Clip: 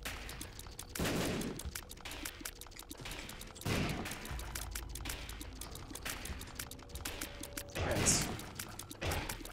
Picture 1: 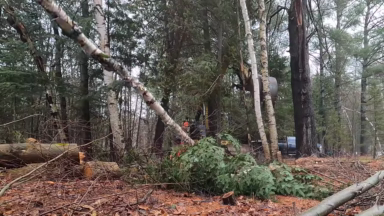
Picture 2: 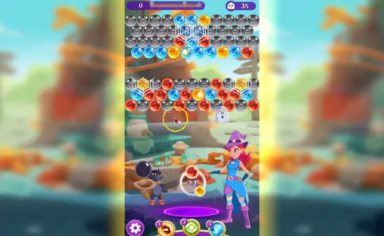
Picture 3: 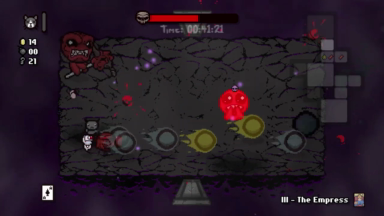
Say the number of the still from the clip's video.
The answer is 3